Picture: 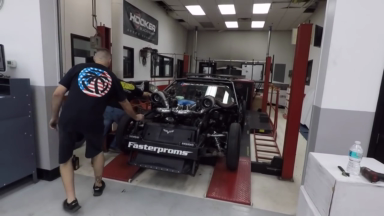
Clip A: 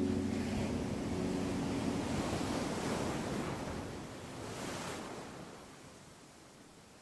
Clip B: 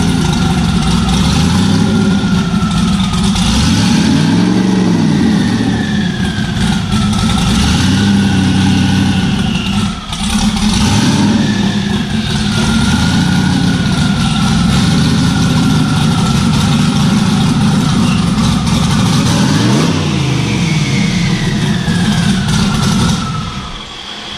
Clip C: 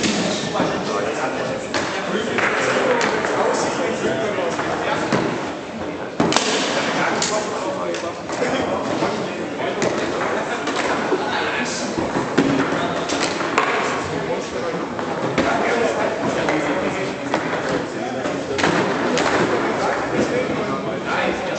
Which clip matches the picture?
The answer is B